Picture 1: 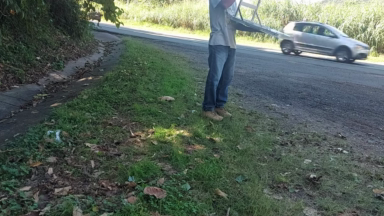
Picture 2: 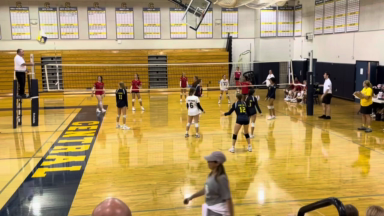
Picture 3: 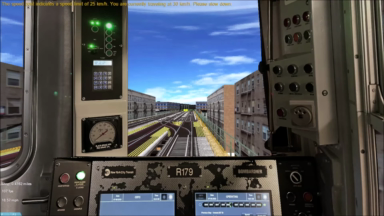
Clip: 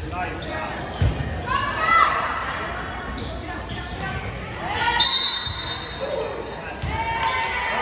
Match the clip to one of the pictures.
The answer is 2